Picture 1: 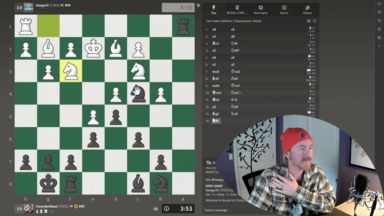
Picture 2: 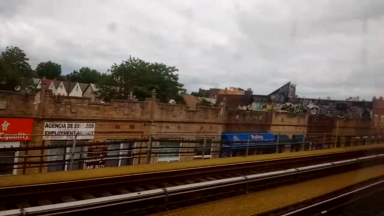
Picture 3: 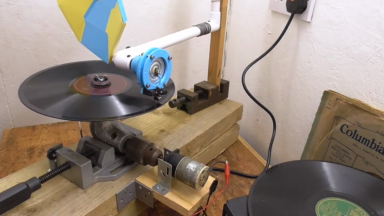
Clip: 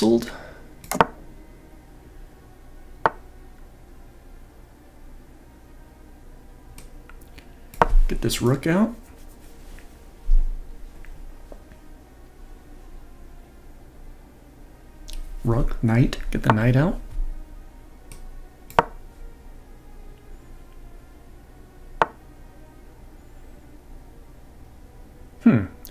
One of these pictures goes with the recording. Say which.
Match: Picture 1